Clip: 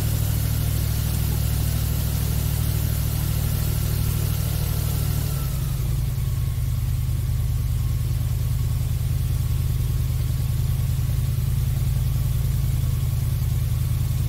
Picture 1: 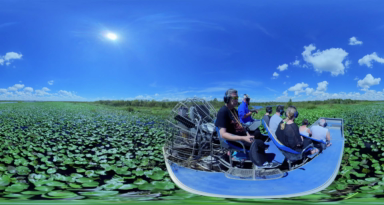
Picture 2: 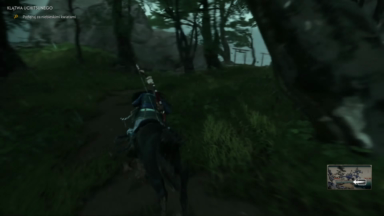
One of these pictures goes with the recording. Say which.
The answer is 1